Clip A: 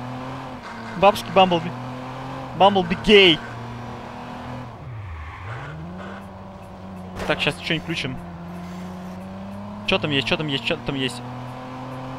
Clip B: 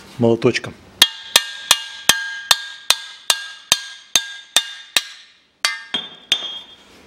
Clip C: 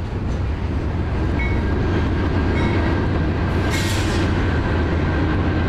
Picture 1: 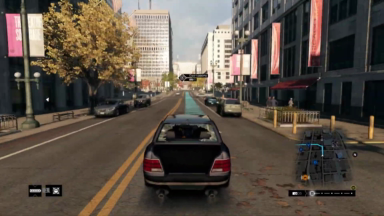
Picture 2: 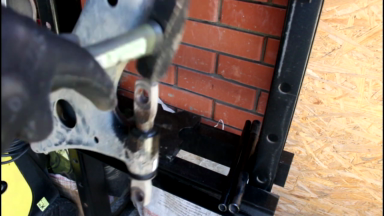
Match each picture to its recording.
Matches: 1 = A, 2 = B